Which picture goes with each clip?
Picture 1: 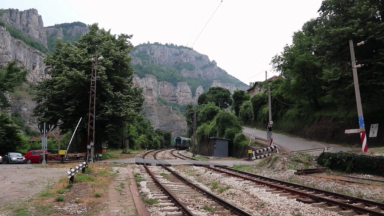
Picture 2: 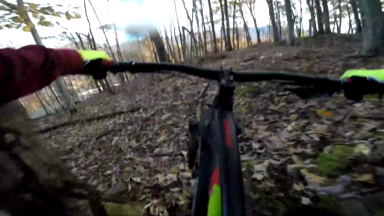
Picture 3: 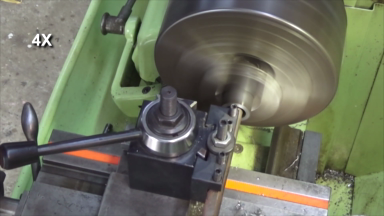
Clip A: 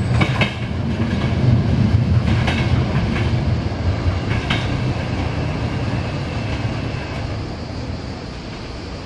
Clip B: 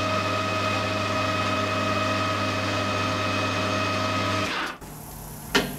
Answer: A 1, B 3